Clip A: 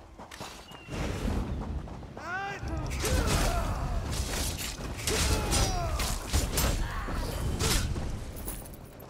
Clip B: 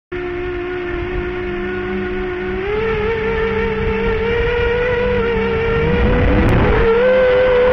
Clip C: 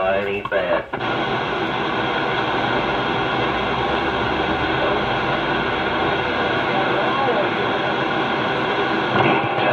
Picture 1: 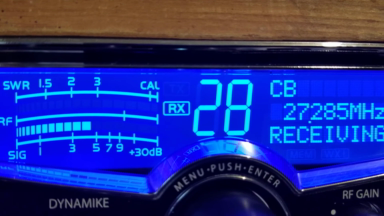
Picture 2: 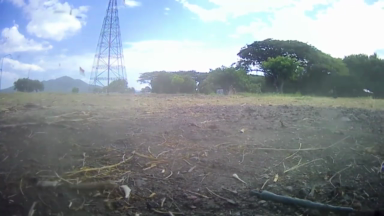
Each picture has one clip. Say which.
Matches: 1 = C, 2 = B